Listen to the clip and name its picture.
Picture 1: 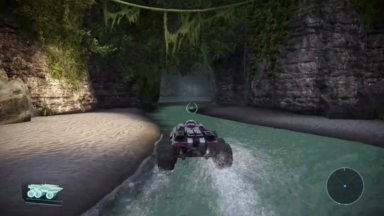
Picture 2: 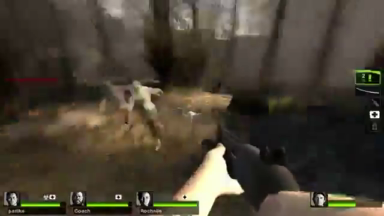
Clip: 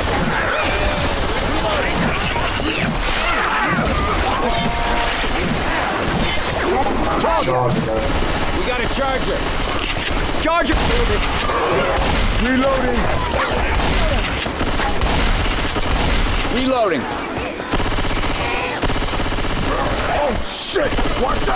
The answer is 2